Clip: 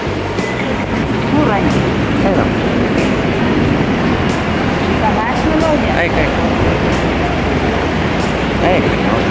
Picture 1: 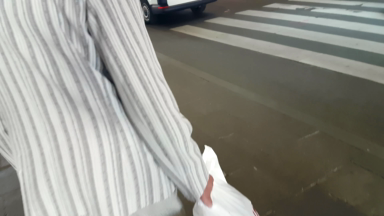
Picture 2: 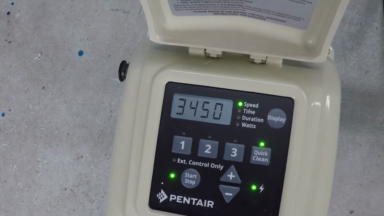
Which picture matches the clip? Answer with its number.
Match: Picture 1